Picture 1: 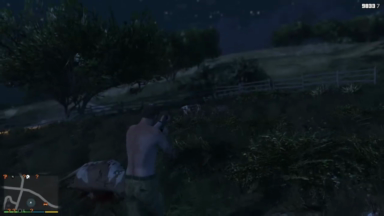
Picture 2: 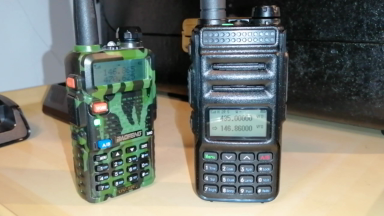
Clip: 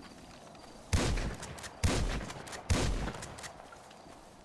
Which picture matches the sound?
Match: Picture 1